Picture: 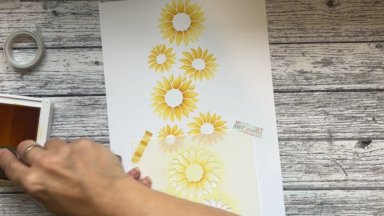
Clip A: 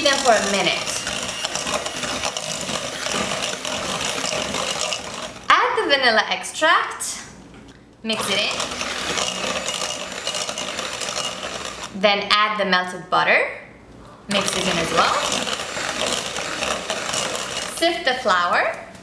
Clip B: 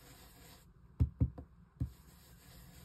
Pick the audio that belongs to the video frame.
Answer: B